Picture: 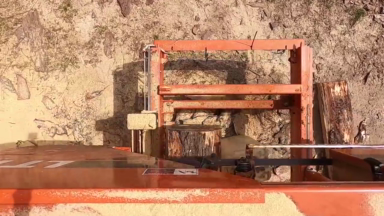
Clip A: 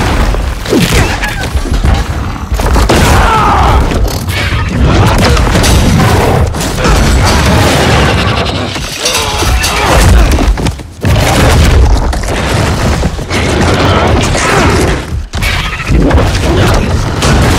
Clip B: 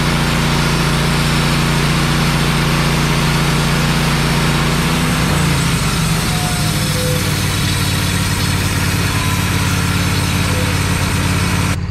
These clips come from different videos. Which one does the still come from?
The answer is B